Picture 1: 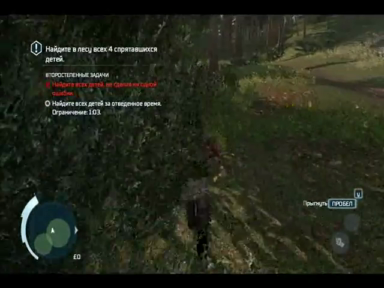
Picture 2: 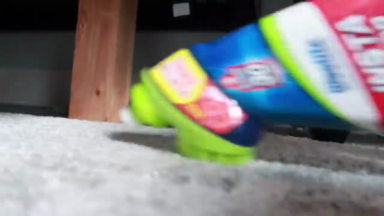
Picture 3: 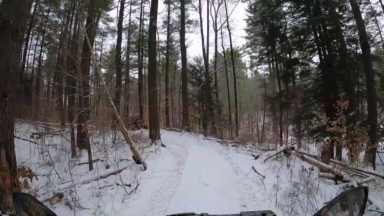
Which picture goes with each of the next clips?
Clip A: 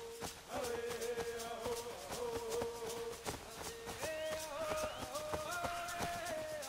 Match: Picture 1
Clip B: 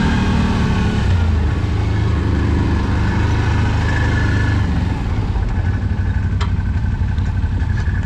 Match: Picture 3